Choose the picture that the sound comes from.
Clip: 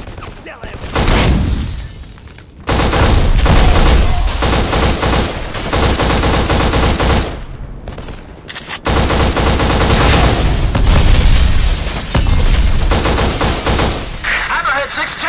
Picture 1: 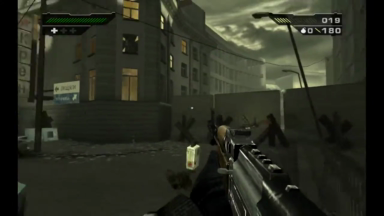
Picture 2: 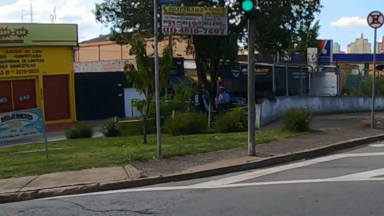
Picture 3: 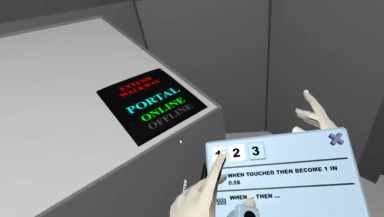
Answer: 1